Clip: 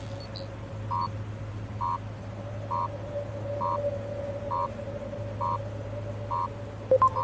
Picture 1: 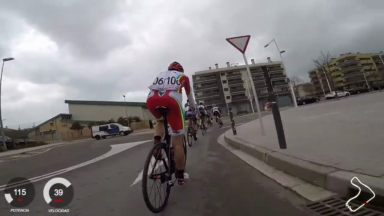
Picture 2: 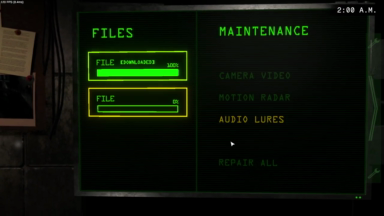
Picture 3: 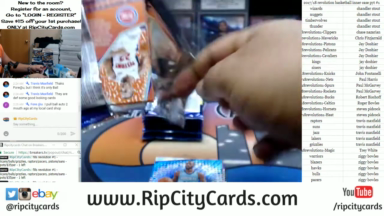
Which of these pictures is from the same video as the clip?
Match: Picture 2